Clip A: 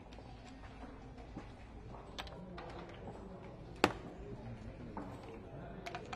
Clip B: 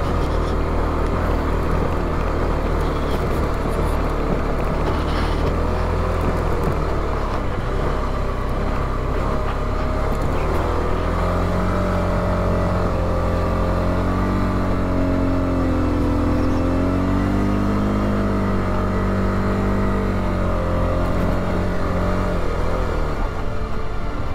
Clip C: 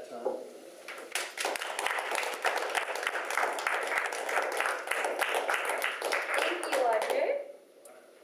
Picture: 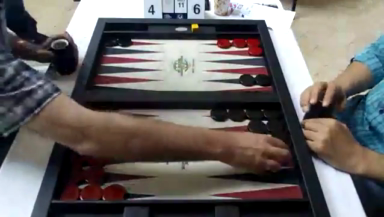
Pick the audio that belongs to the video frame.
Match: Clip A